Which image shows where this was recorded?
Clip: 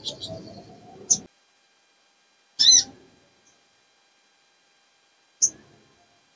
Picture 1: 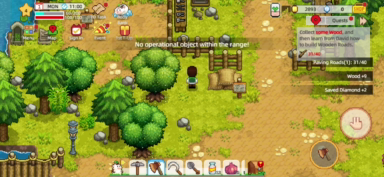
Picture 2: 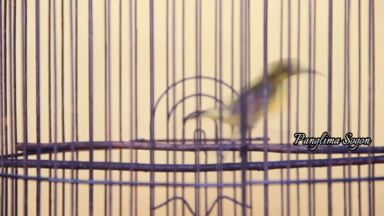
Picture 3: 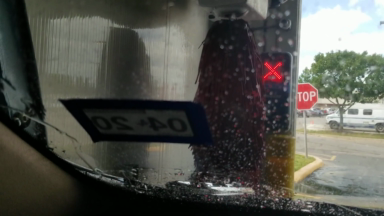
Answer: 2